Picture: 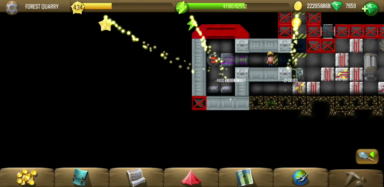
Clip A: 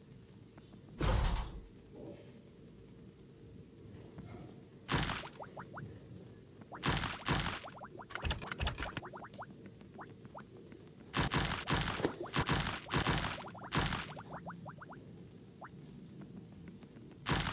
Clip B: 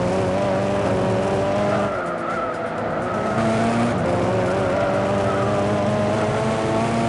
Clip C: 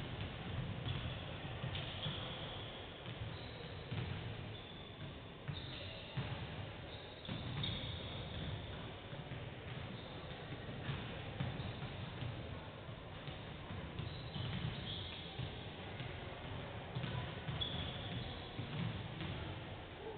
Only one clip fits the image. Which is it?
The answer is A